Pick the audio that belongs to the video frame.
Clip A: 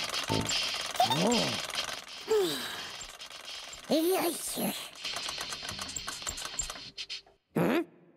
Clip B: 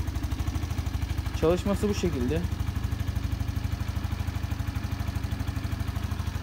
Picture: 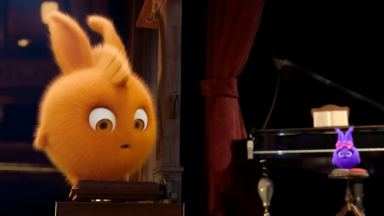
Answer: A